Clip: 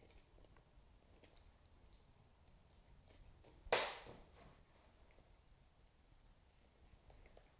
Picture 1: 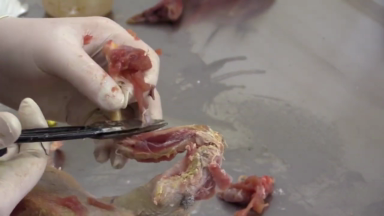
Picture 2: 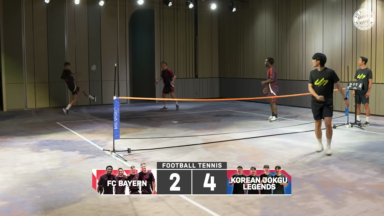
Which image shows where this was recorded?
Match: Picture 1